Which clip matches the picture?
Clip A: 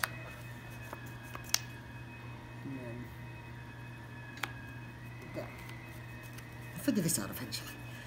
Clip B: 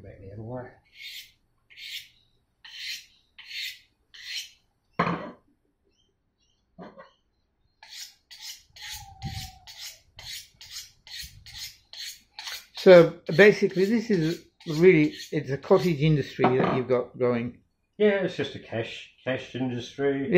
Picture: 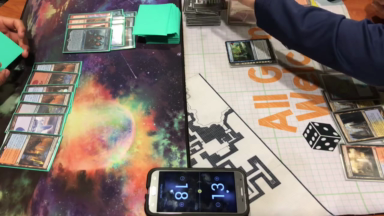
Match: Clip A